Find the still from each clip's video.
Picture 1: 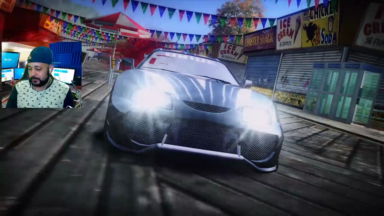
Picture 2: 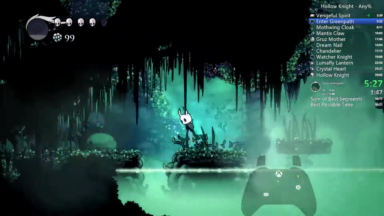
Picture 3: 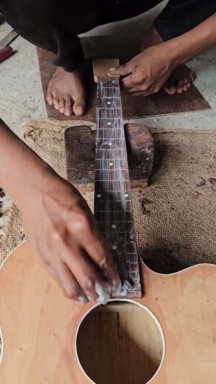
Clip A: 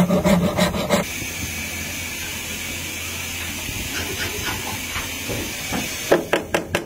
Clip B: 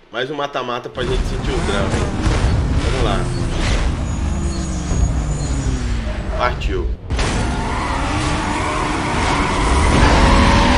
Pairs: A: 3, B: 1